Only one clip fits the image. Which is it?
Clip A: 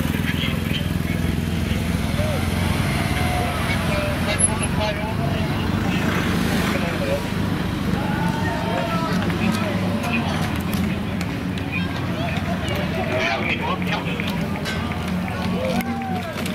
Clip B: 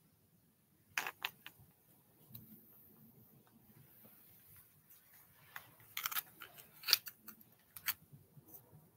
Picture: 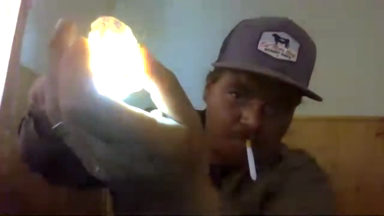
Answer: B